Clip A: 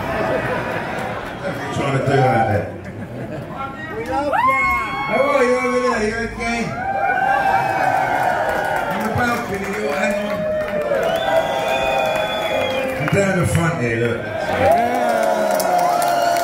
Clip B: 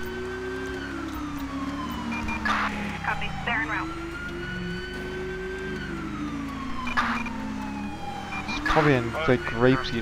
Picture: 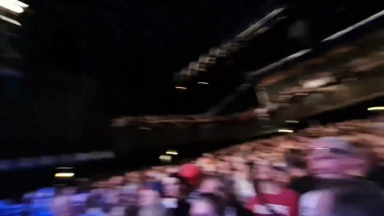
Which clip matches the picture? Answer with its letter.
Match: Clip A